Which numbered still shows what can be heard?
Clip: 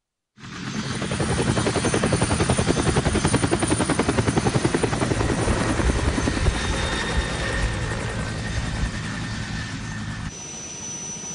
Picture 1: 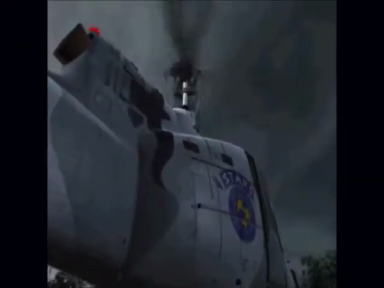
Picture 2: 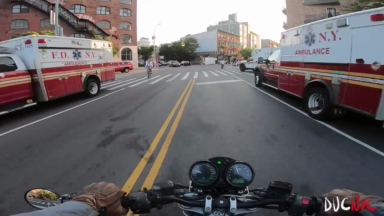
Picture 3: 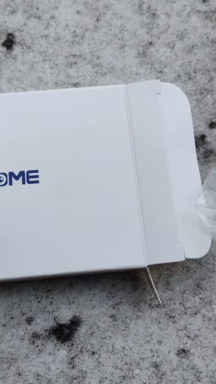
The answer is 1